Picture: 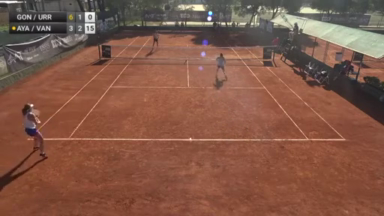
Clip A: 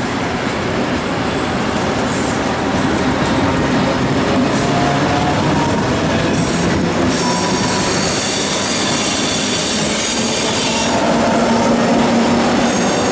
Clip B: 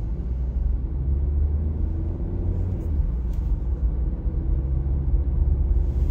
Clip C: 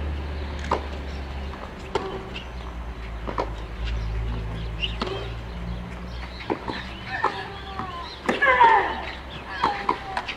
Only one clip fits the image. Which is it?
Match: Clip C